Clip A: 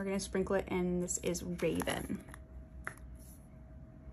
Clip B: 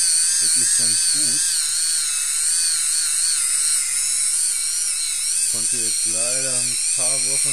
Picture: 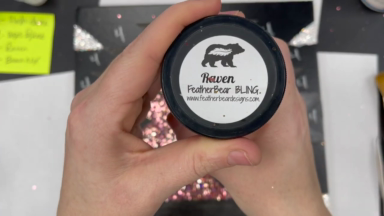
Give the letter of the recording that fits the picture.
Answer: A